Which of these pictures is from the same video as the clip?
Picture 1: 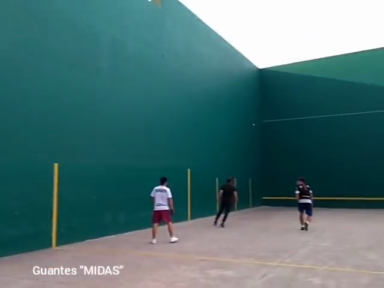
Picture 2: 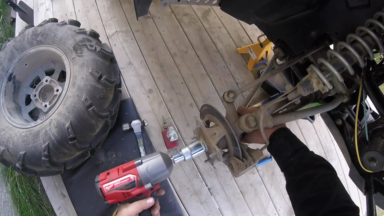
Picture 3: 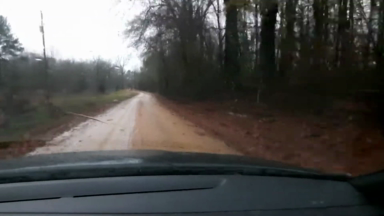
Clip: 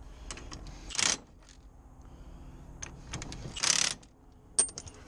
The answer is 2